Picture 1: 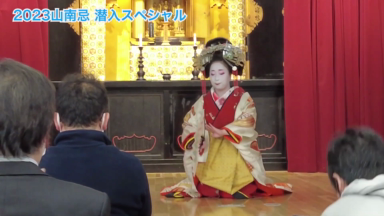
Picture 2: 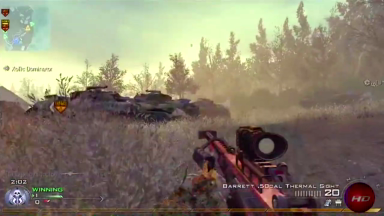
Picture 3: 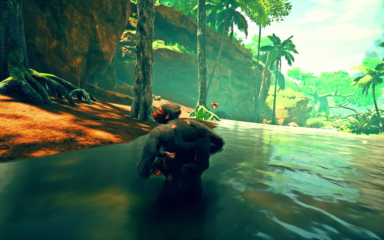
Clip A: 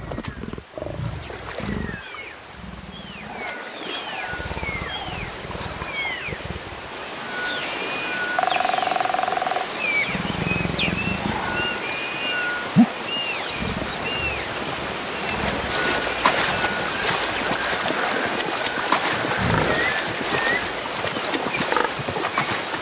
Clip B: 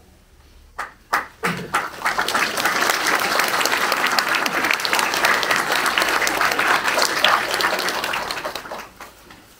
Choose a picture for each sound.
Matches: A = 3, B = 1